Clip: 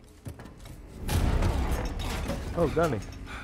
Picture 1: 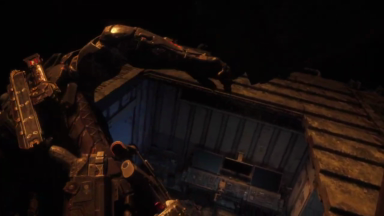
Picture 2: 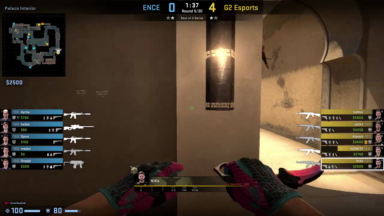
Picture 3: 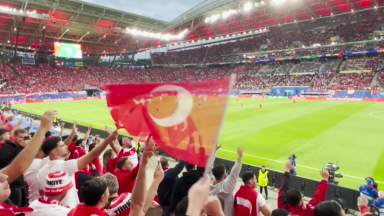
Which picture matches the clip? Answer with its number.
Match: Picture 1